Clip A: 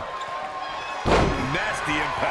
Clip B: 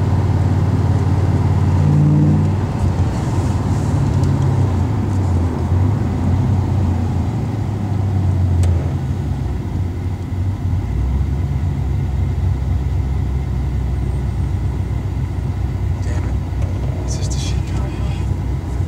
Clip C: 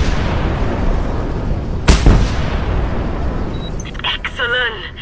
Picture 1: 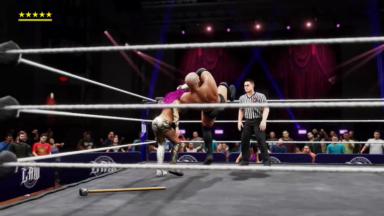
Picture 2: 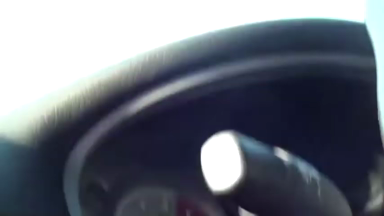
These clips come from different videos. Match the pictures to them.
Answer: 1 A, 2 B